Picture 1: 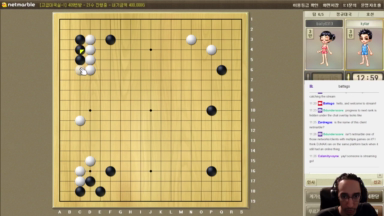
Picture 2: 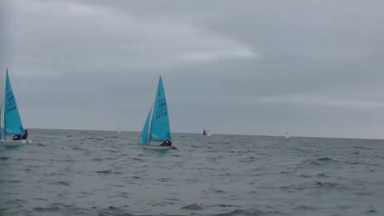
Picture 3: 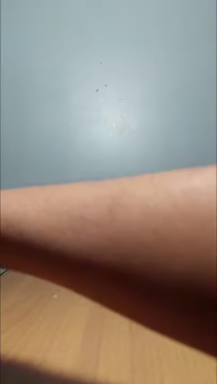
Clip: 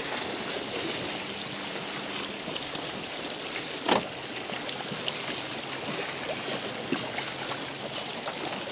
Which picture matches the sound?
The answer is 2